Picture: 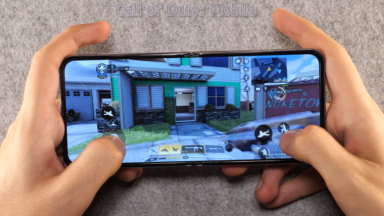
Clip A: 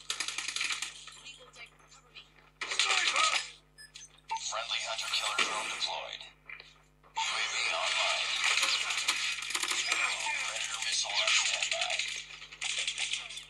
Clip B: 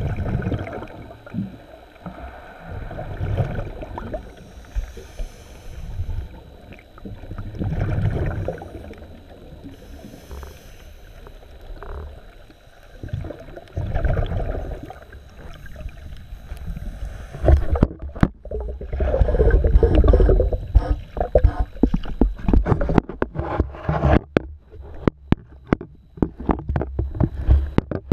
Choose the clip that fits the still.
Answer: A